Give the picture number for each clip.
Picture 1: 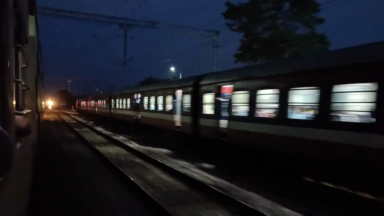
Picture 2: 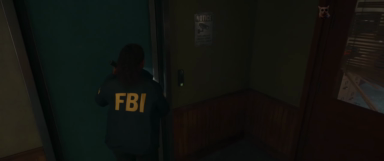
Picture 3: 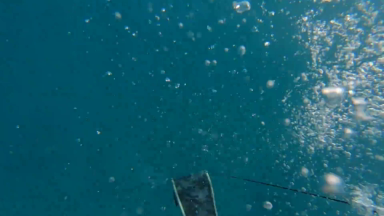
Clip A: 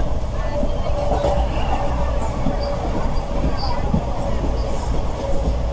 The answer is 1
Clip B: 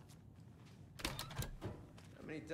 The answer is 2